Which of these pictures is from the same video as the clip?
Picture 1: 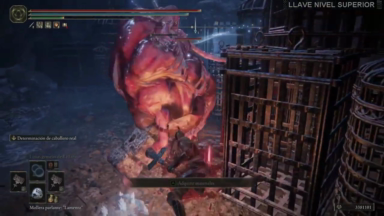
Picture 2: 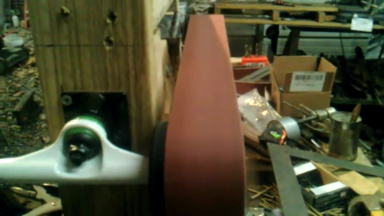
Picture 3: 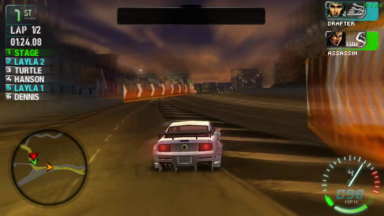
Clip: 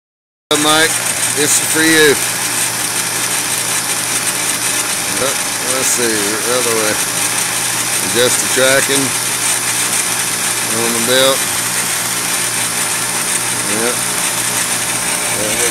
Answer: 2